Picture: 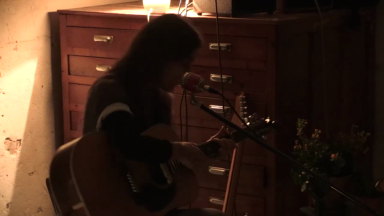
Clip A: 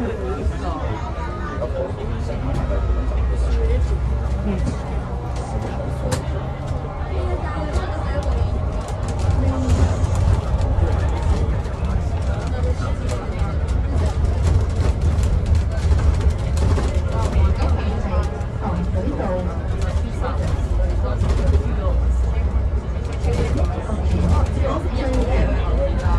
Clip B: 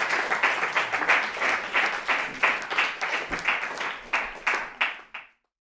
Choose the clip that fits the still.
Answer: B